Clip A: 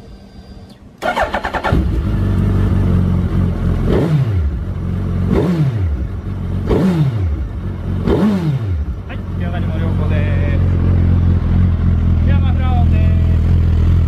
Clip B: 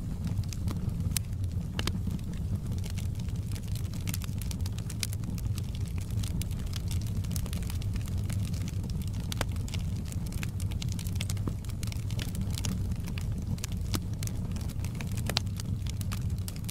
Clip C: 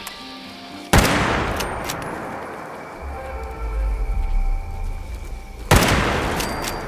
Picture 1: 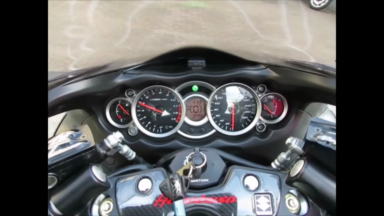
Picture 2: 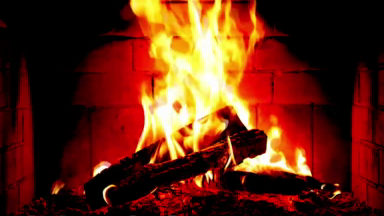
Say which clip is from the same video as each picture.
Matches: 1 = A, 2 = B